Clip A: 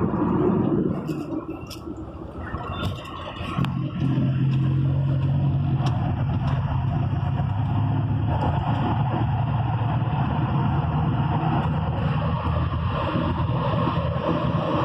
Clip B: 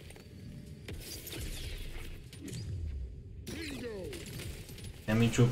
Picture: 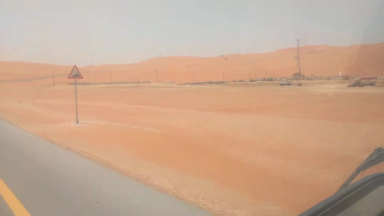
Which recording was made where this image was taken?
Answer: A